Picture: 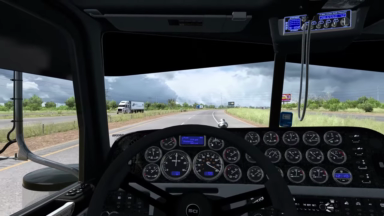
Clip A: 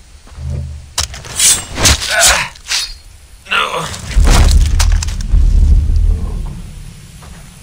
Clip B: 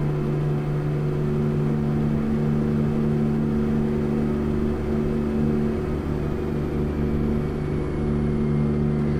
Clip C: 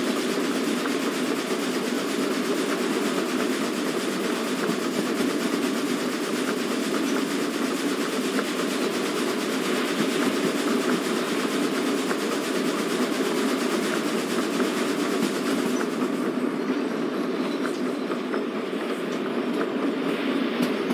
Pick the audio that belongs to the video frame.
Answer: B